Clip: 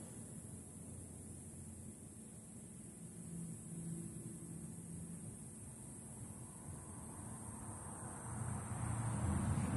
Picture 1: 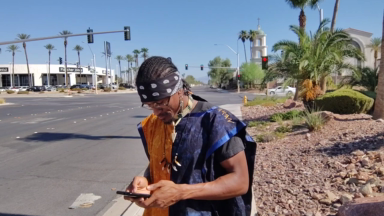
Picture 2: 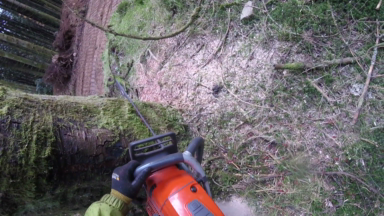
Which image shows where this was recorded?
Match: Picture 1